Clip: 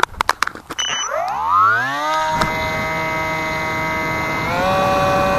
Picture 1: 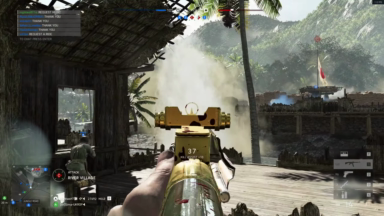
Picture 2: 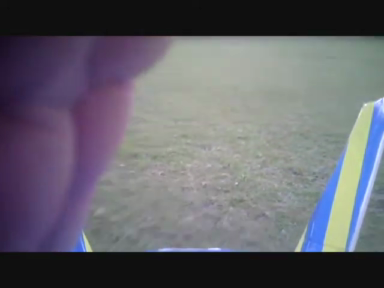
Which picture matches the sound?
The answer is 2